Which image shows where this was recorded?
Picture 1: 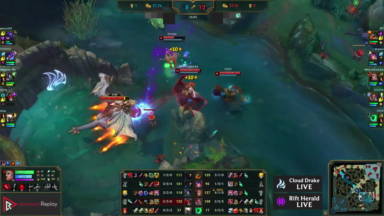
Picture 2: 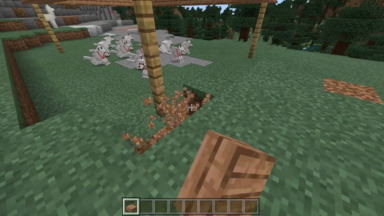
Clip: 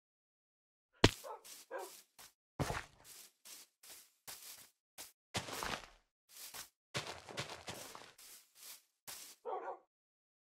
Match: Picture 2